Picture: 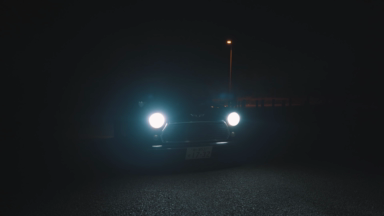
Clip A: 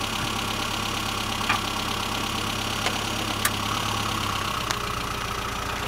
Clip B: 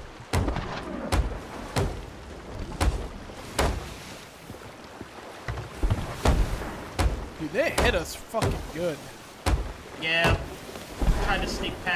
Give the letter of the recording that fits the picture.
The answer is A